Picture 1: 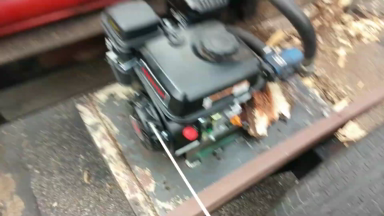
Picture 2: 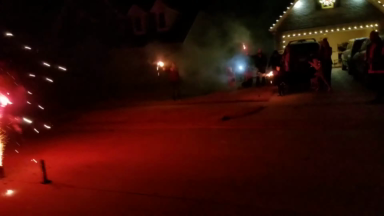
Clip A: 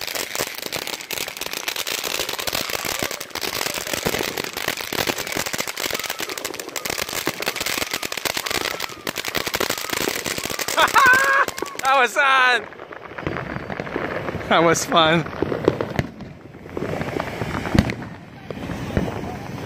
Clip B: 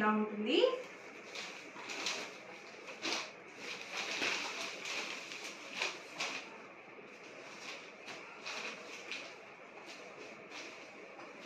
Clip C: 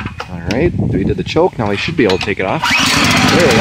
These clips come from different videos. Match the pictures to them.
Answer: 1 C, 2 A